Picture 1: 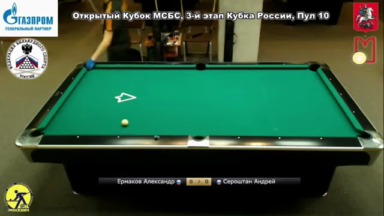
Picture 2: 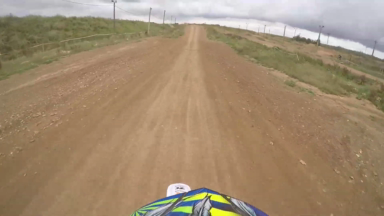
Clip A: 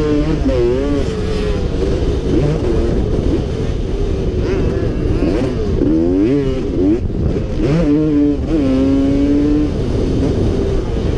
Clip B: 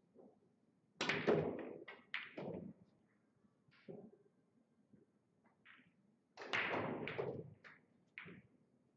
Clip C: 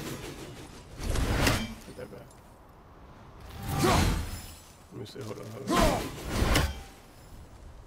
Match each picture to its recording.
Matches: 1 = B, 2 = A